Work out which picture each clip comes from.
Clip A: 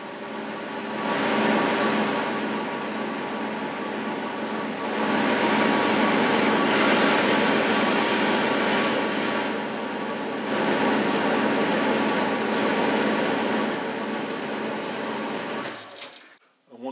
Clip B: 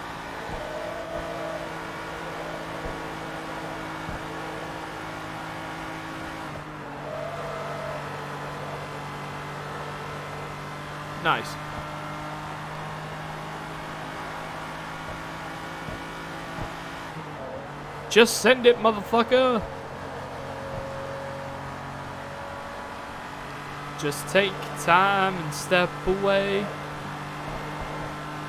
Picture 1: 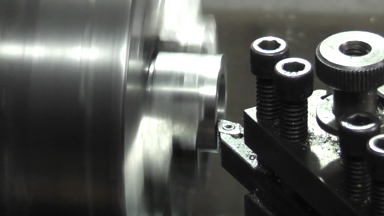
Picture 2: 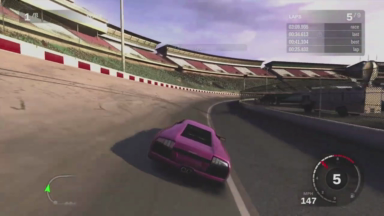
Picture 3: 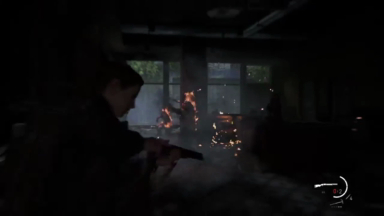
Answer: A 1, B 2